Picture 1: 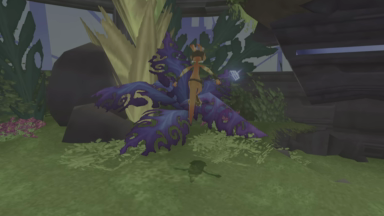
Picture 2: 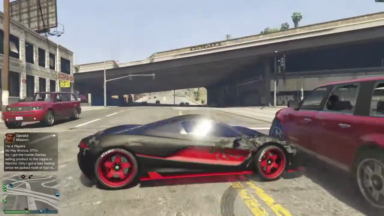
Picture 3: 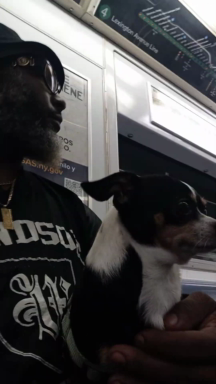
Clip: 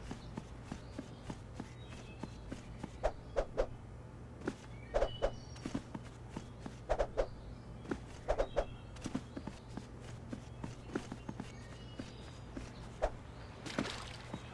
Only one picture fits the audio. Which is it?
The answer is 1